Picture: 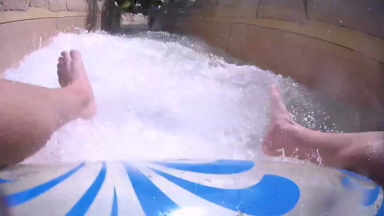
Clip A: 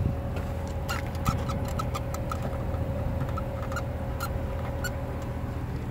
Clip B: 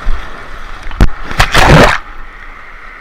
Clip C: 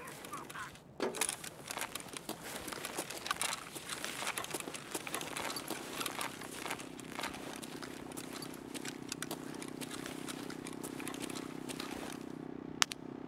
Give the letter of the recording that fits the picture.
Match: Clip B